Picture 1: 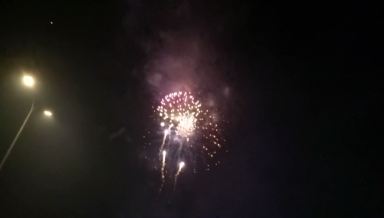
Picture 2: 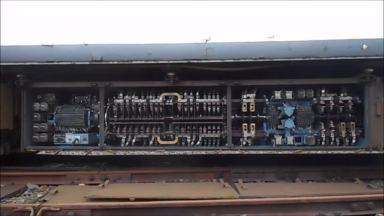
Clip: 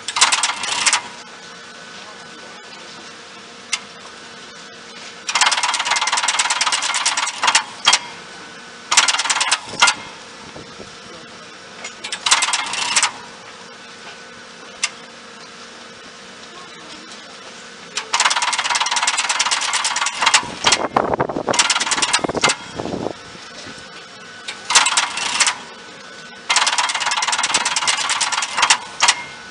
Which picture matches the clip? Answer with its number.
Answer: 2